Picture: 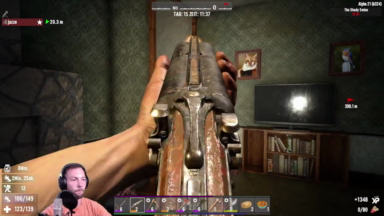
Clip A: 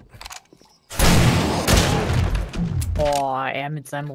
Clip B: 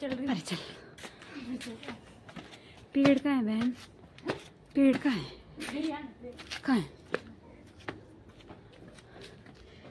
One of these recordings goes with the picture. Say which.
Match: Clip A